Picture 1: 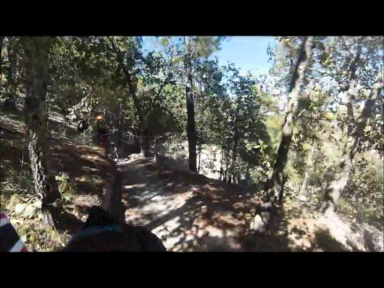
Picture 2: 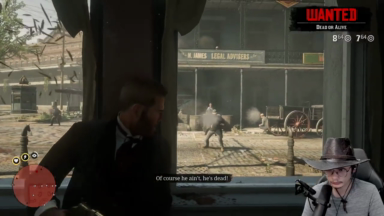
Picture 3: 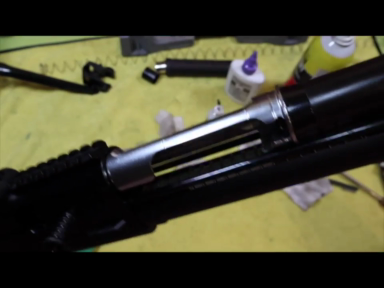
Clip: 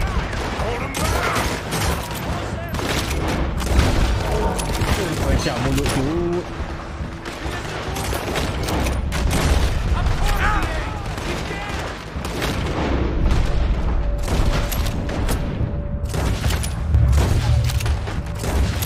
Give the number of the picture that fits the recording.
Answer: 2